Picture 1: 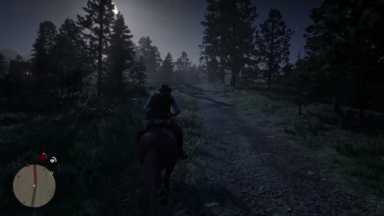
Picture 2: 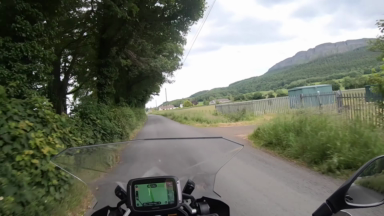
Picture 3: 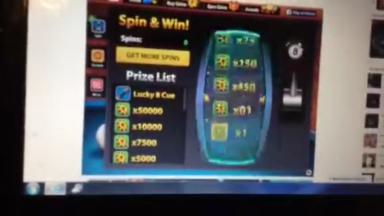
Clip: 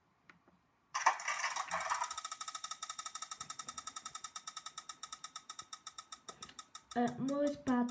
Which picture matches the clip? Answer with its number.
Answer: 3